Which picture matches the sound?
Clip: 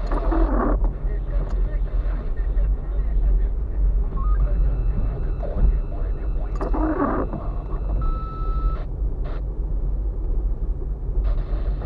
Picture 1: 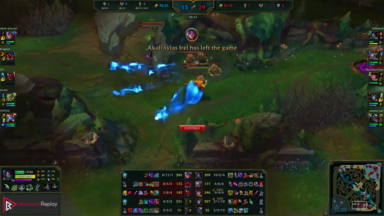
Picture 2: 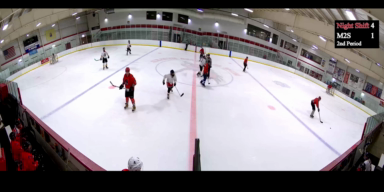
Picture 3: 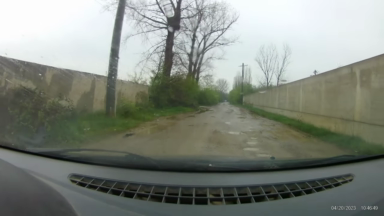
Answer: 3